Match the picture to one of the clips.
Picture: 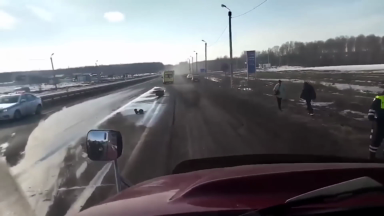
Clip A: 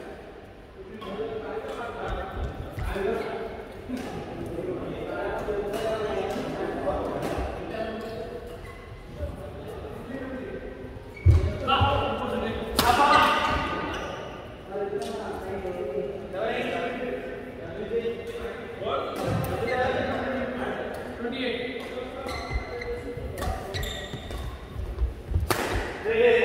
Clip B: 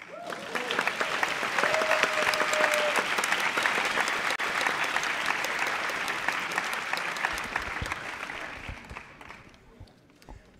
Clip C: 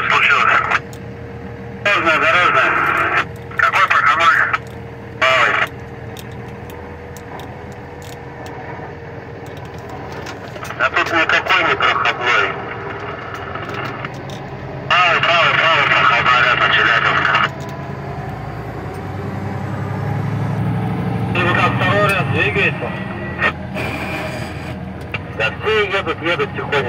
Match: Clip C